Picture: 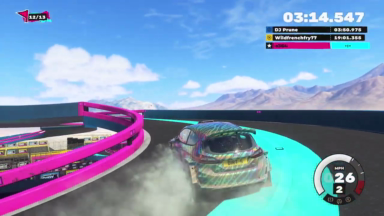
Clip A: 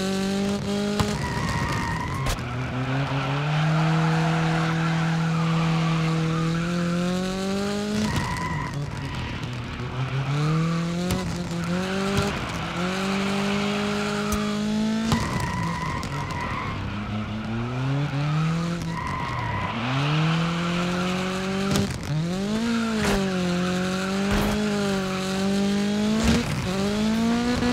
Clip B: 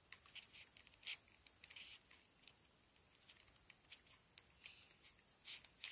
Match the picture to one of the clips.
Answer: A